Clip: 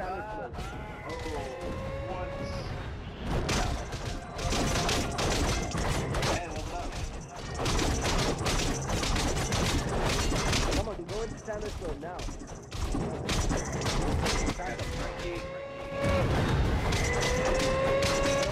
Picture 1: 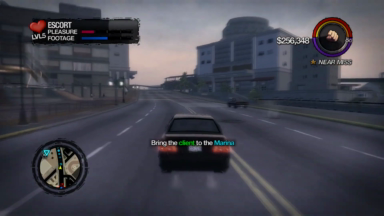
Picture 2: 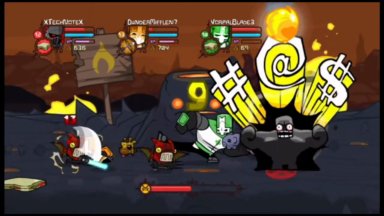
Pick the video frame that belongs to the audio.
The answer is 2